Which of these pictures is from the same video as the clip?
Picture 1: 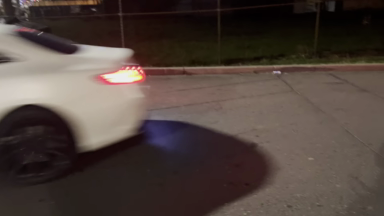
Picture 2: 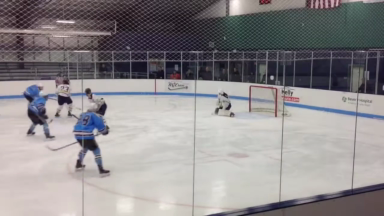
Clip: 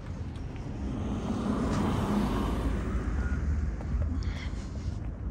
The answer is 1